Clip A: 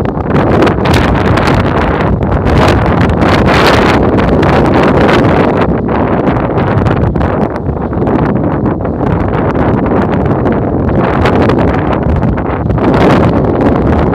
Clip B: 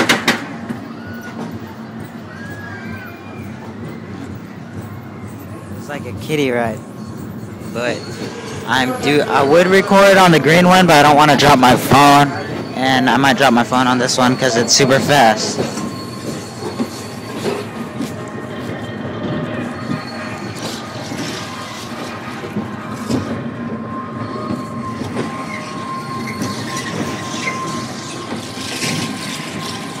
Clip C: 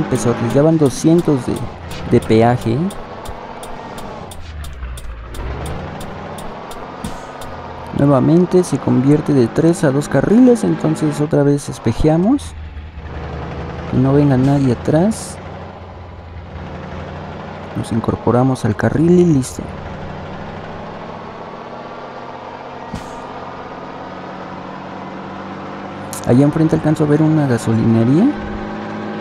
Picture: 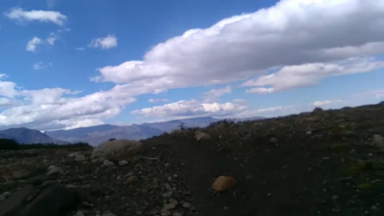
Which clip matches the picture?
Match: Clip A